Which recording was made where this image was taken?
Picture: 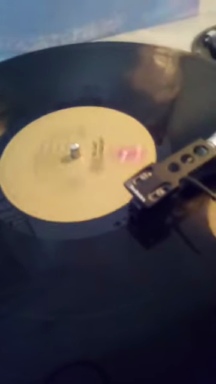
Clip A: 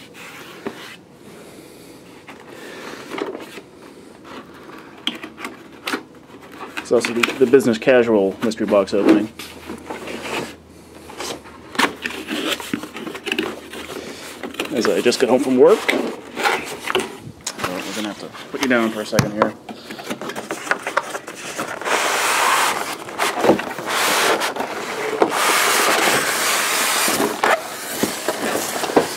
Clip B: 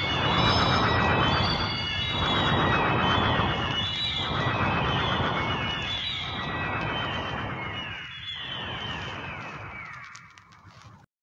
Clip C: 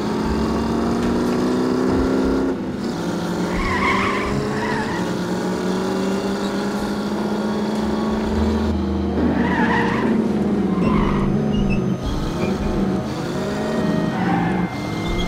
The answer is B